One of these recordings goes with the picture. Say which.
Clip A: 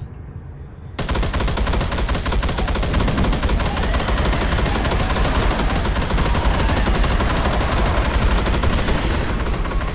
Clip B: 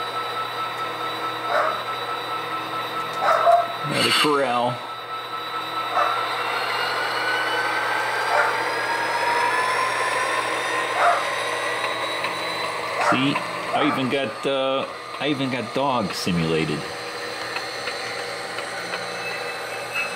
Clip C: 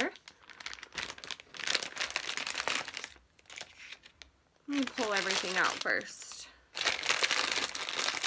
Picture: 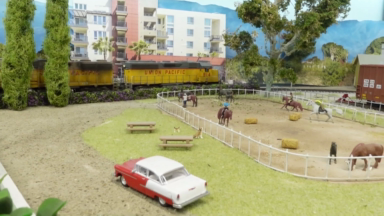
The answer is B